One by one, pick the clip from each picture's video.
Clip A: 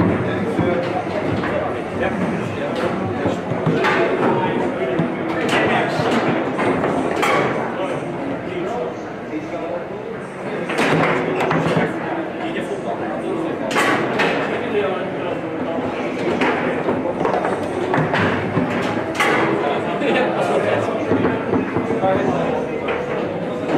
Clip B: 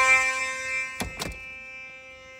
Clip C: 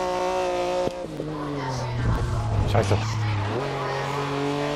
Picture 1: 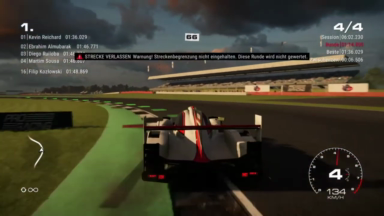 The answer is C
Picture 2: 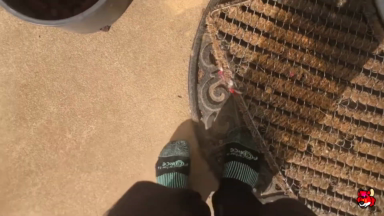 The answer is B